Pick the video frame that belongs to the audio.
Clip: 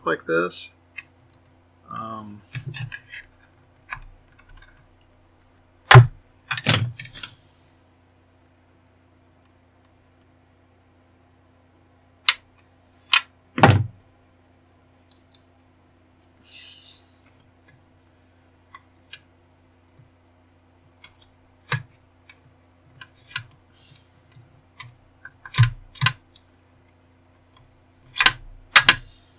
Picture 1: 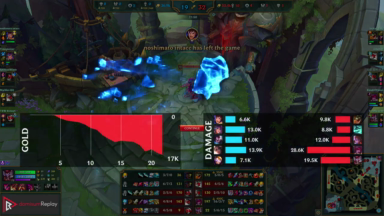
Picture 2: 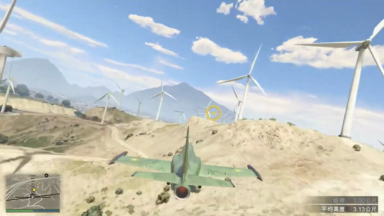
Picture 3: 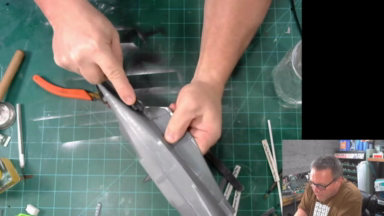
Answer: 3